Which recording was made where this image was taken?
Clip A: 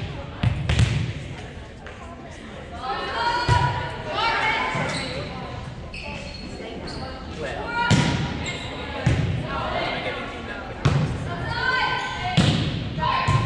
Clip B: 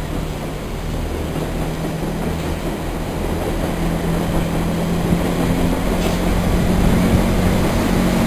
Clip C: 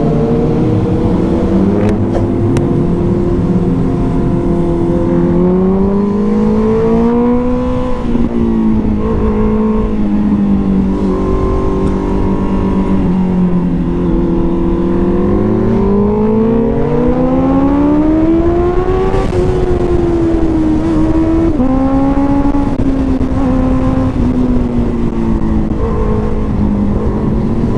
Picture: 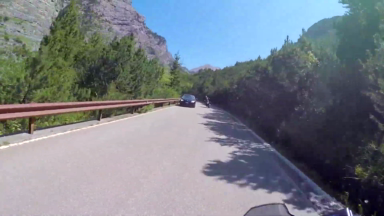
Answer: C